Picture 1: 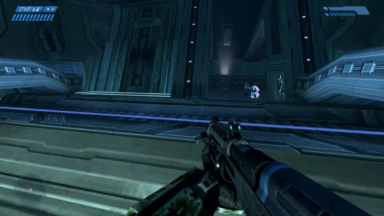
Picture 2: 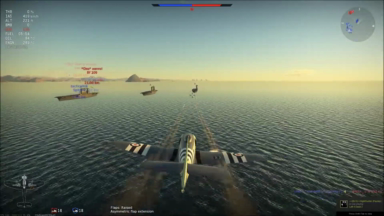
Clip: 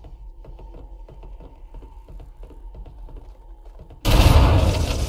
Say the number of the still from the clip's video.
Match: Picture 1